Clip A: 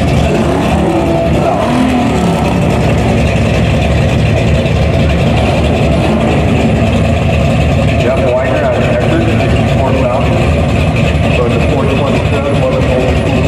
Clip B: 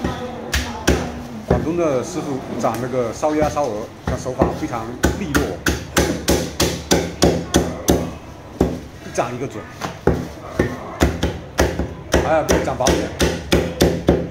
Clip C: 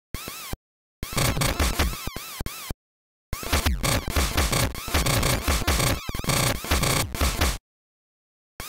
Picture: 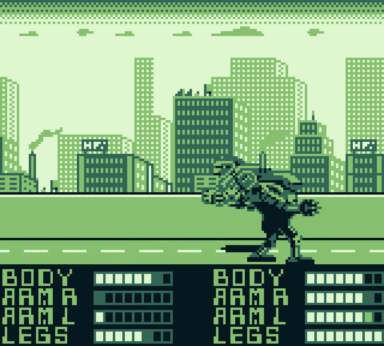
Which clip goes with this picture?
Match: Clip C